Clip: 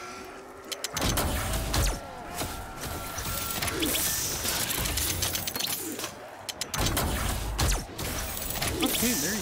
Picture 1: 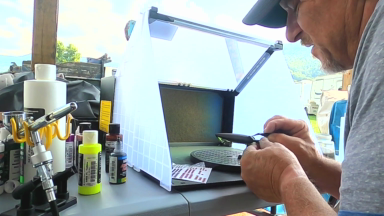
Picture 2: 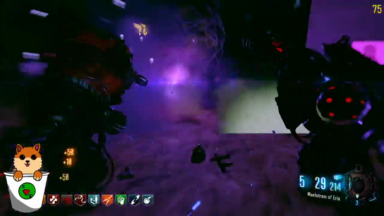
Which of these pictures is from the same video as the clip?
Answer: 2